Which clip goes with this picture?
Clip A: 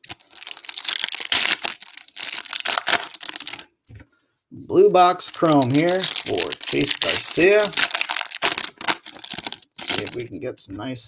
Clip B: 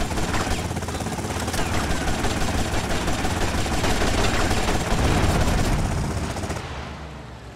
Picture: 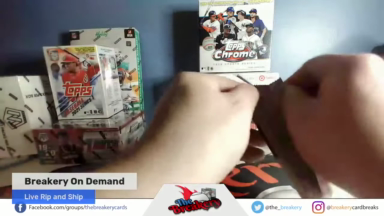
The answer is A